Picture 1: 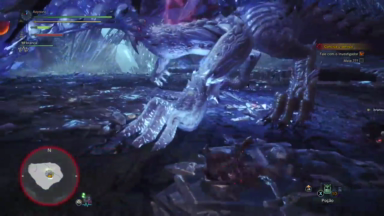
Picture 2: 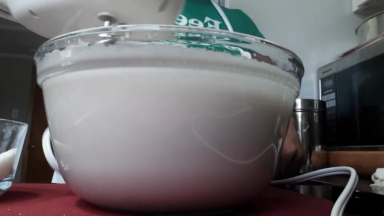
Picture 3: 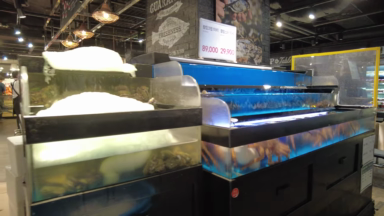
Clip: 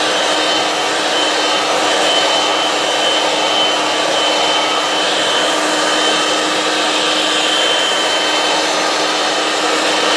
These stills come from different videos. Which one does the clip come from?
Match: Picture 2